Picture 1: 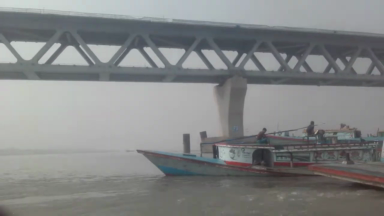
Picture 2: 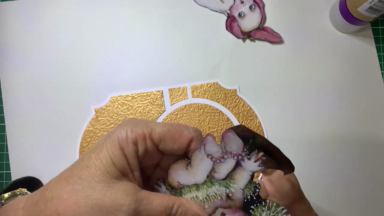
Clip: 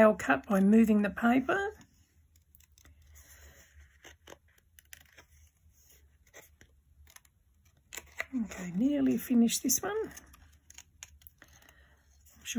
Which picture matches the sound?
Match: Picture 2